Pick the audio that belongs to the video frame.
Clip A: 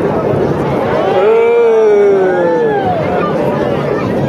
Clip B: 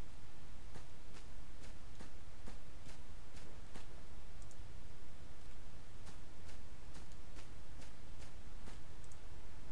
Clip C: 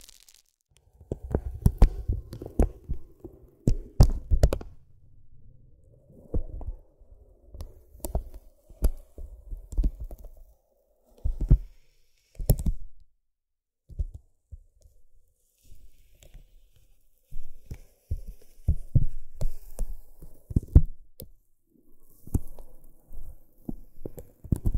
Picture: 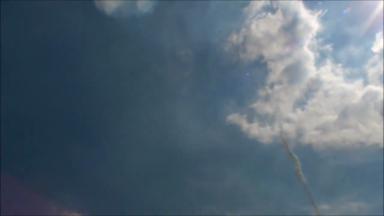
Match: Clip A